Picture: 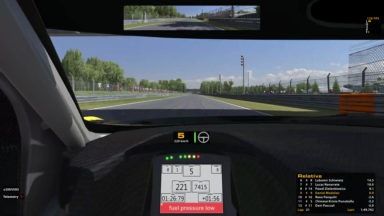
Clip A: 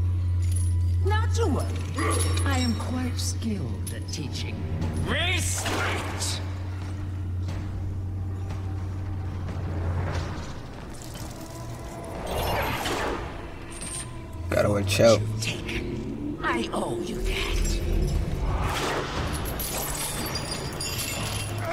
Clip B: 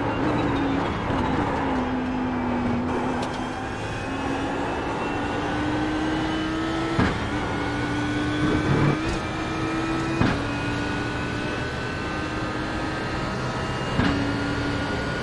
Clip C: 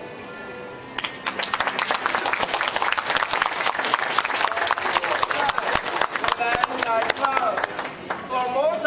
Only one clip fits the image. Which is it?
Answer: B